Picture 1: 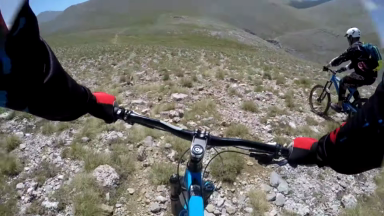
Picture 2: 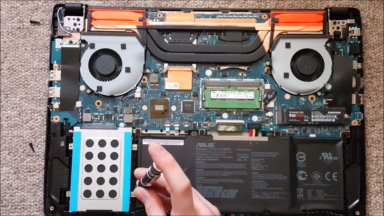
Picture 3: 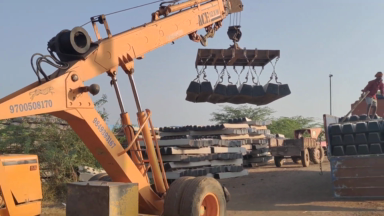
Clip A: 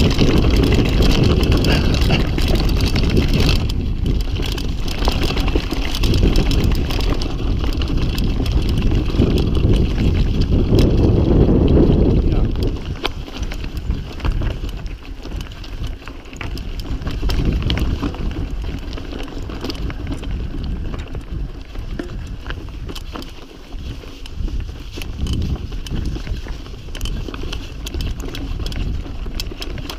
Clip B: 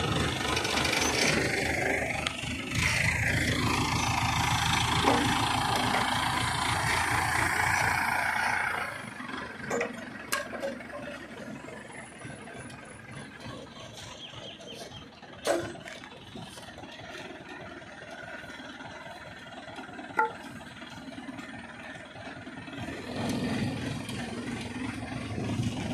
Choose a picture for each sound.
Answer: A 1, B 3